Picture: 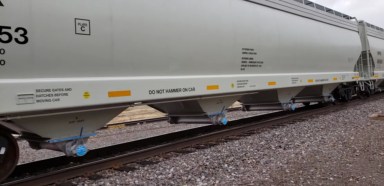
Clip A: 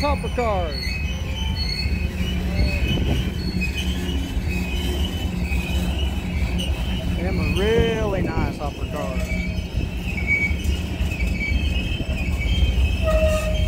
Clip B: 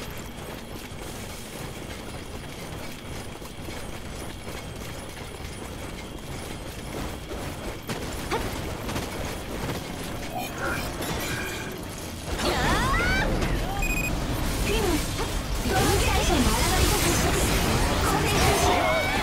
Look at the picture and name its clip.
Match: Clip A